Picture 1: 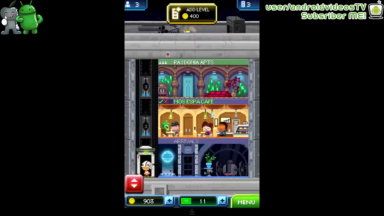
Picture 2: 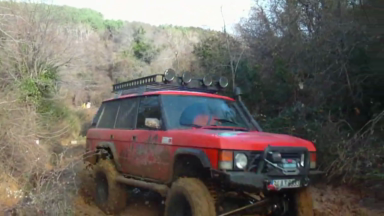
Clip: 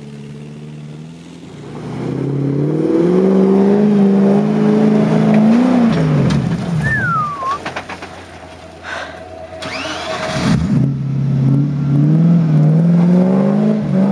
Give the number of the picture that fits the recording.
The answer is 2